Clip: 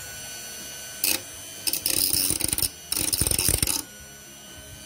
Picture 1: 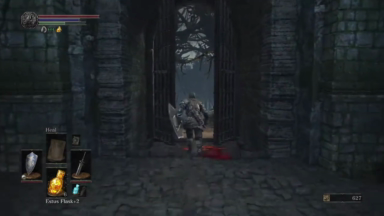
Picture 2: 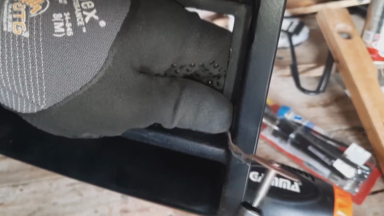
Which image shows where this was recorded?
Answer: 2